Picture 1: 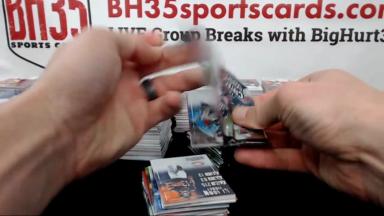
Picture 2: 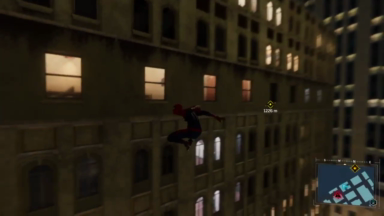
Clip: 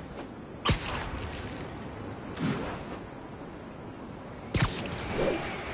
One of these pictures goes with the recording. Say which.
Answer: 2